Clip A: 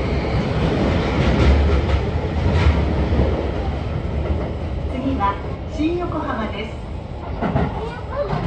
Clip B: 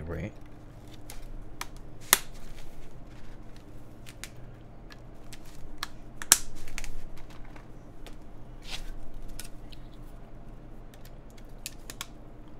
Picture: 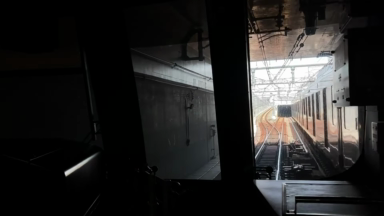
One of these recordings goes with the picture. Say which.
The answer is A